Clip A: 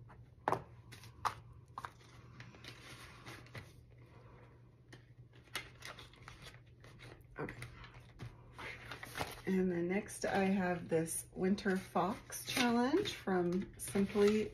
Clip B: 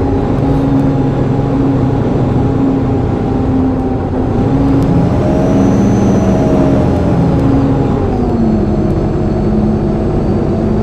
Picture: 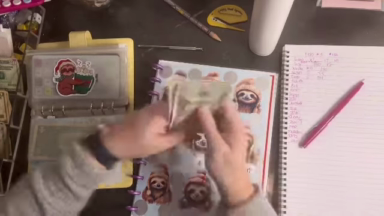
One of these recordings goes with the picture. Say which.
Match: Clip A